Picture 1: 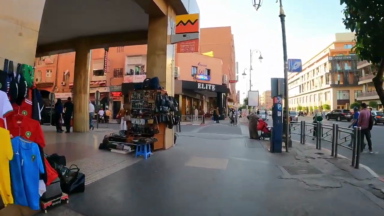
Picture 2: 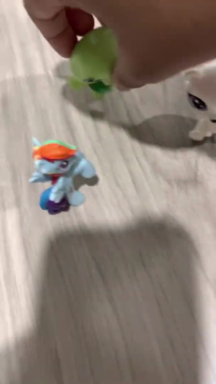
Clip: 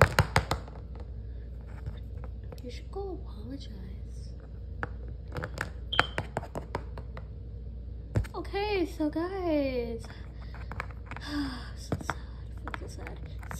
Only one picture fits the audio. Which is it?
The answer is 2